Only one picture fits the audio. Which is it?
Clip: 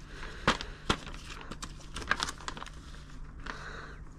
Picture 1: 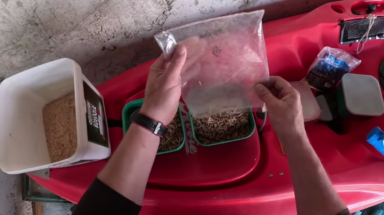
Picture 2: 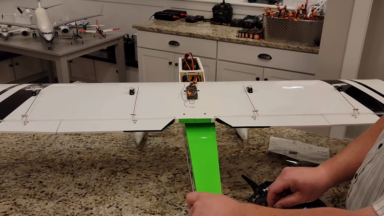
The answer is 1